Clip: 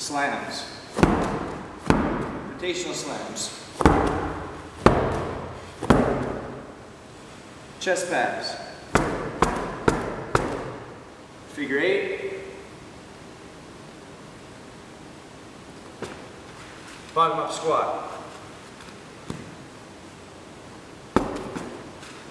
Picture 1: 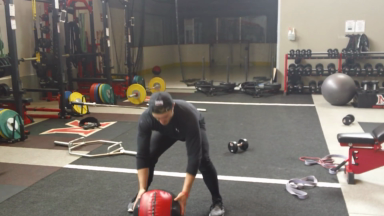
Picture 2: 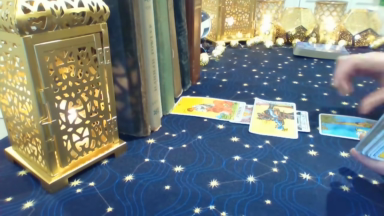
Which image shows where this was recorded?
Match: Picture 1